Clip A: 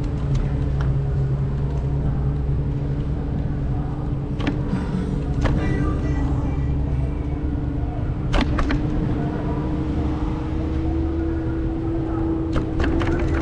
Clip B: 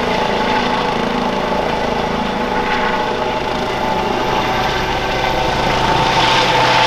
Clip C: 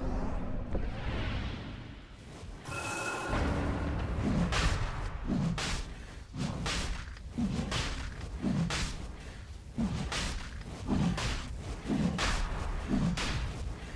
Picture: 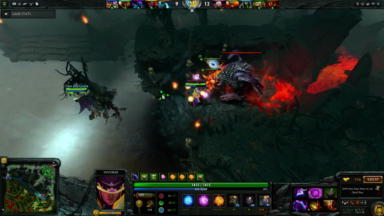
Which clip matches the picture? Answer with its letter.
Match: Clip C